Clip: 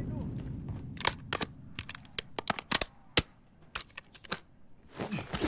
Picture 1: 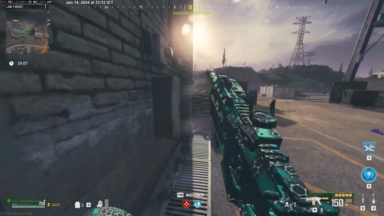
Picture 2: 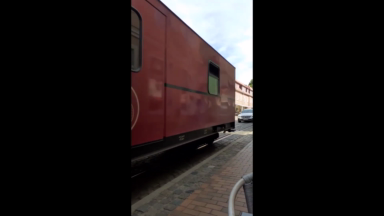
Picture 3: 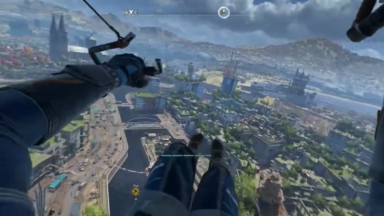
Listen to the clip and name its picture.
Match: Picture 1